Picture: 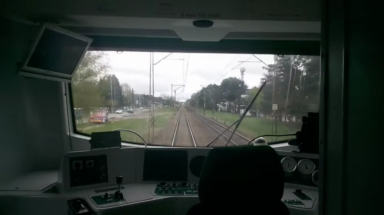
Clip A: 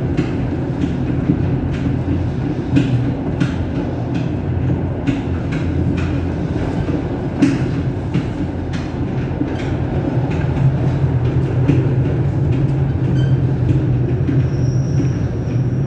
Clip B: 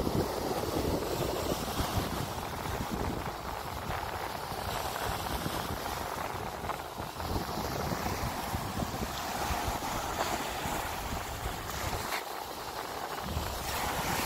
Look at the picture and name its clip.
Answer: A